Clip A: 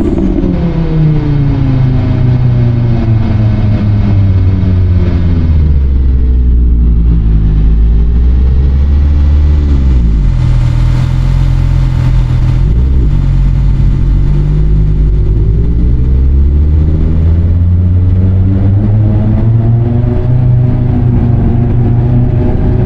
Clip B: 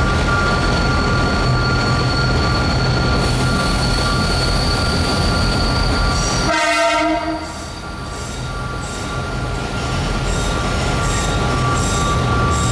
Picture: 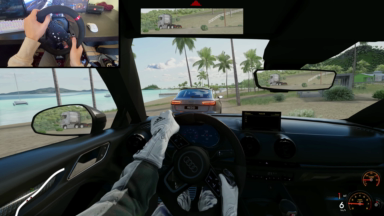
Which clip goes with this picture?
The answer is A